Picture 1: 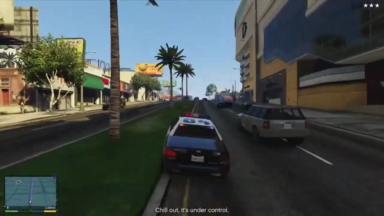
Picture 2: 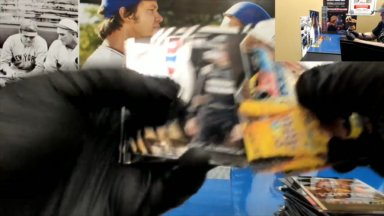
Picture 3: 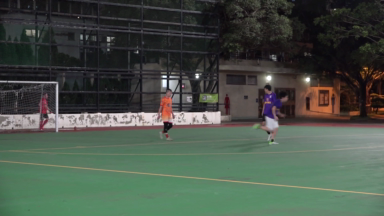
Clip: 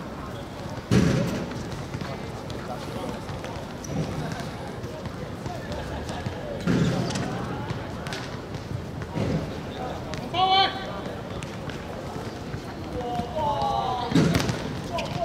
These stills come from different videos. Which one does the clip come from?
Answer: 3